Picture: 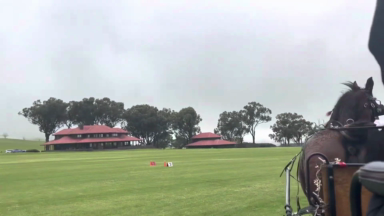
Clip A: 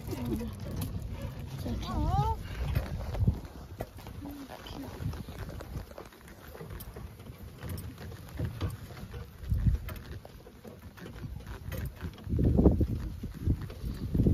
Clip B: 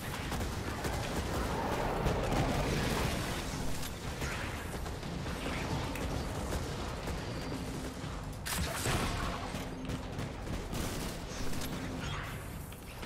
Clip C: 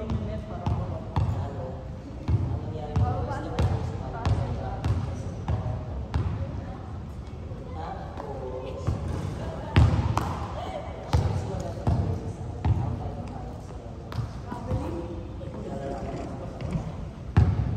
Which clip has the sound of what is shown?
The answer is A